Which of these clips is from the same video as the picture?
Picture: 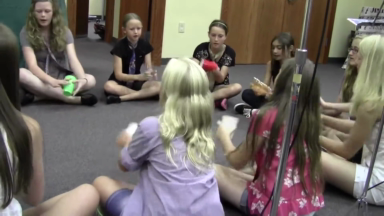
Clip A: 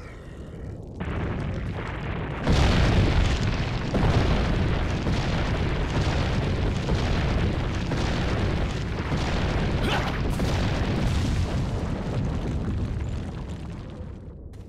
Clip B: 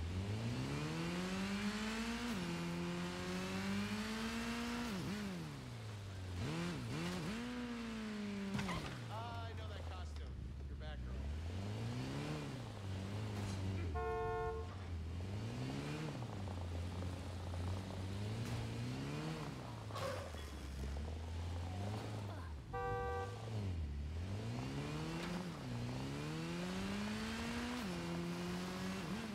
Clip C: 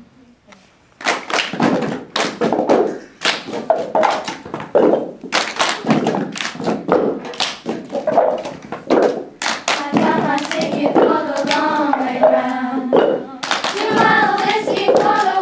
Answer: C